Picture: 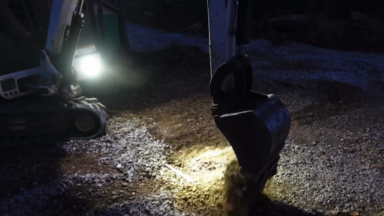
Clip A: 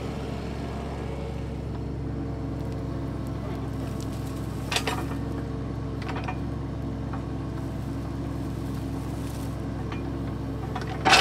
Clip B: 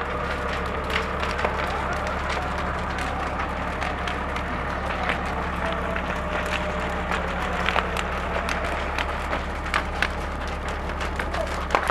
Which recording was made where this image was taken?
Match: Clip A